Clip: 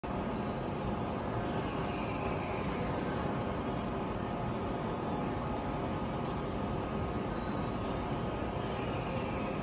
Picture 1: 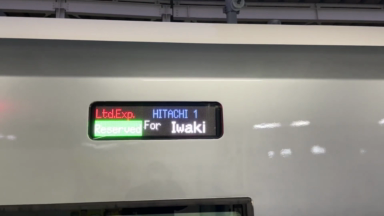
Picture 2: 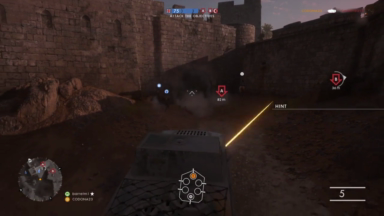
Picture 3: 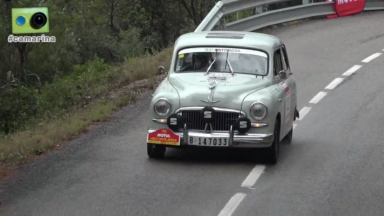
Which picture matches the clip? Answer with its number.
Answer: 1